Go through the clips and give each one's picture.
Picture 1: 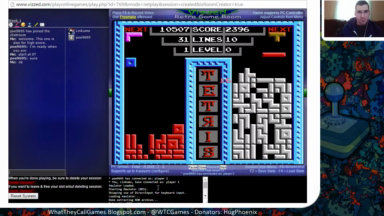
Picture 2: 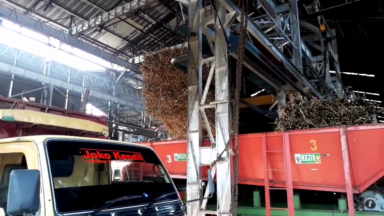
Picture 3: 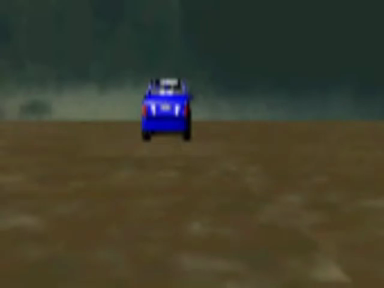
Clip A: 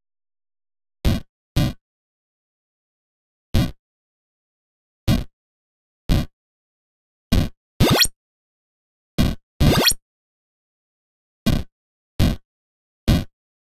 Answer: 1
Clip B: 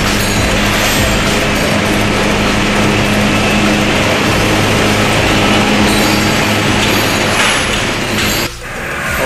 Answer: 2